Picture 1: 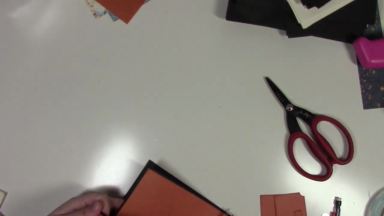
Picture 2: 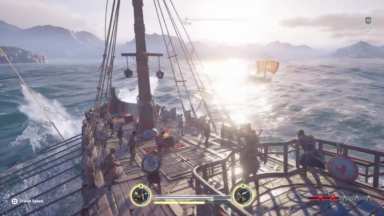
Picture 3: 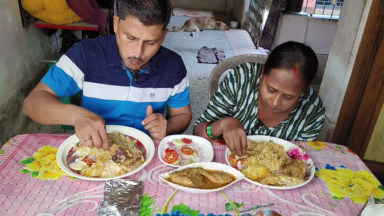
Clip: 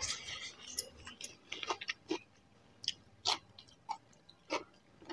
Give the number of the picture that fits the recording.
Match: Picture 3